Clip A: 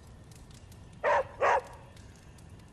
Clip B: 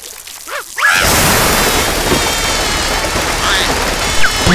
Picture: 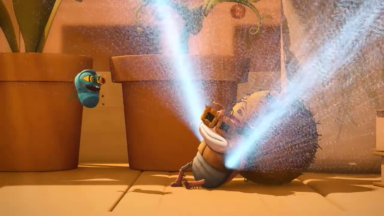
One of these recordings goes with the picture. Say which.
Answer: B